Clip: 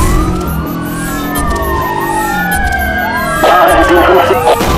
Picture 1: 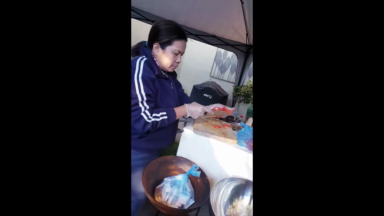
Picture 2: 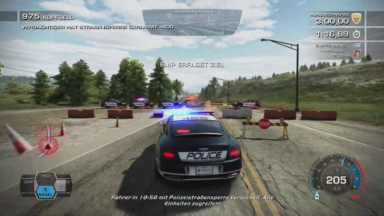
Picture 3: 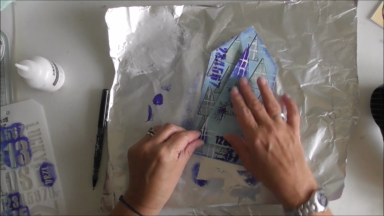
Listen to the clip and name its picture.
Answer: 2